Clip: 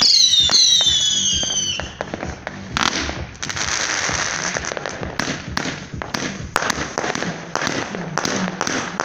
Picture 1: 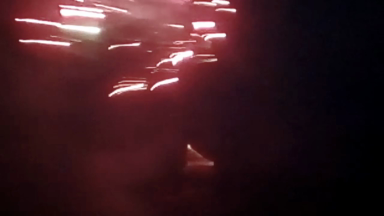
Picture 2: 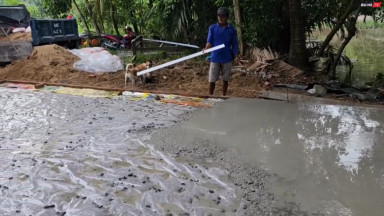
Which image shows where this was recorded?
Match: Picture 1